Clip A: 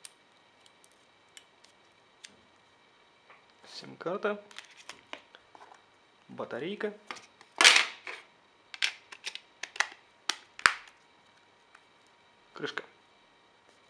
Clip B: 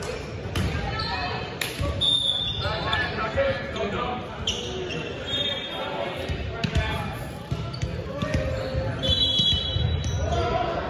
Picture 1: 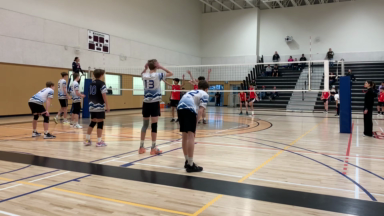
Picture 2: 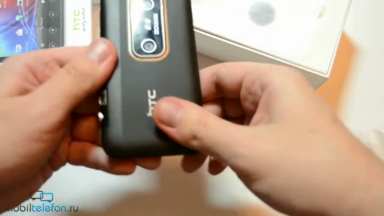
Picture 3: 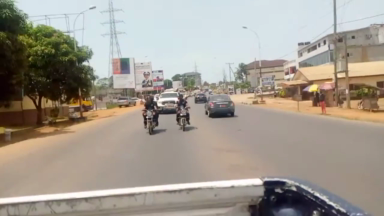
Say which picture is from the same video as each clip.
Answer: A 2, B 1